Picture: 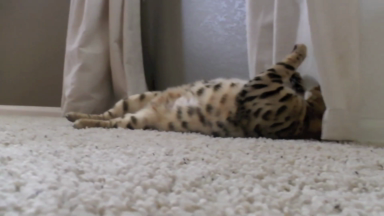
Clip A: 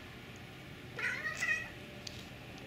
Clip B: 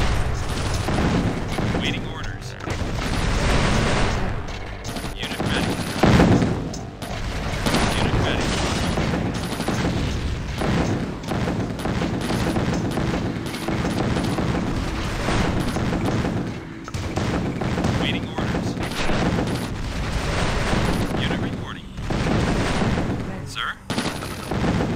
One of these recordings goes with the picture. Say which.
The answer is A